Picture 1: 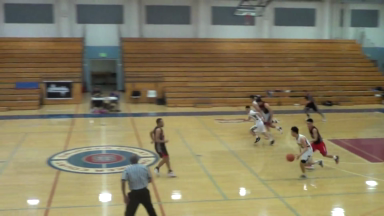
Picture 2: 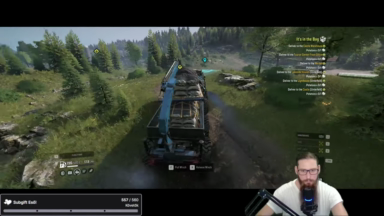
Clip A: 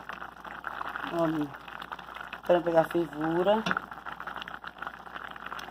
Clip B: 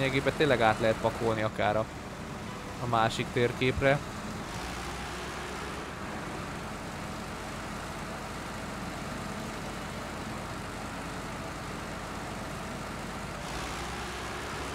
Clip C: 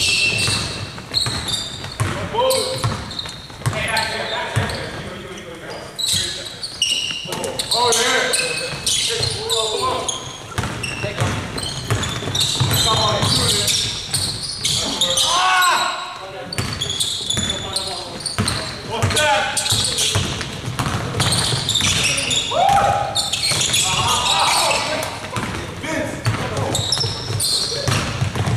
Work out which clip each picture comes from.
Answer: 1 C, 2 B